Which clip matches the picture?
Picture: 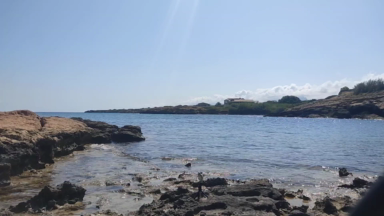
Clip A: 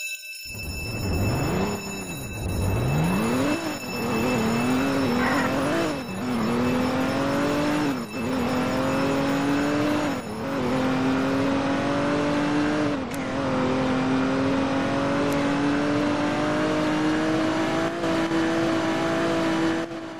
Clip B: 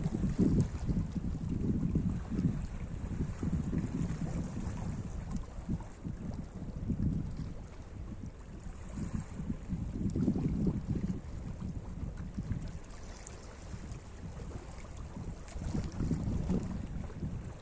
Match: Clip B